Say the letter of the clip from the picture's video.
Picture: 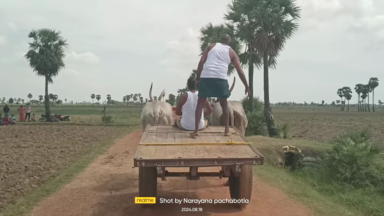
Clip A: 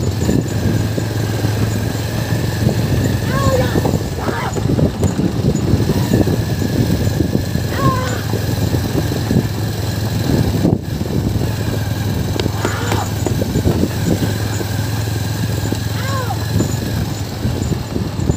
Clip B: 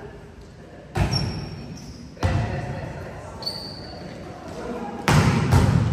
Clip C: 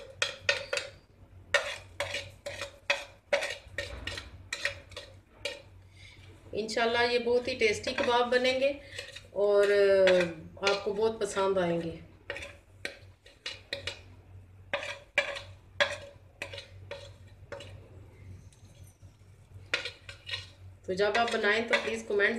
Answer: A